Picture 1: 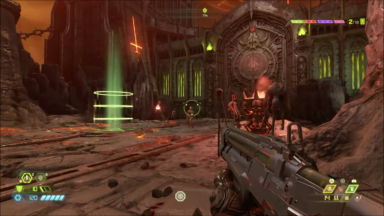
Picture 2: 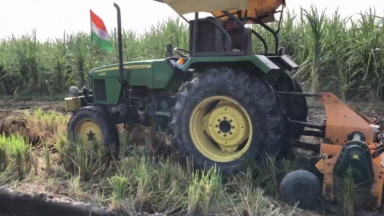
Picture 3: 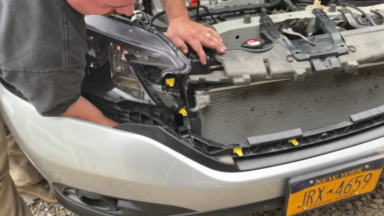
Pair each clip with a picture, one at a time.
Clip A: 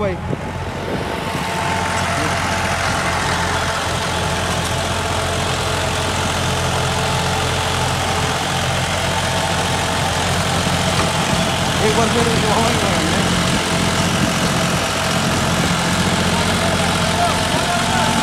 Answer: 2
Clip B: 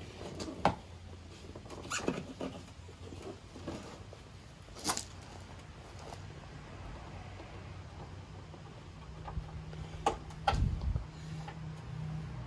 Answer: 3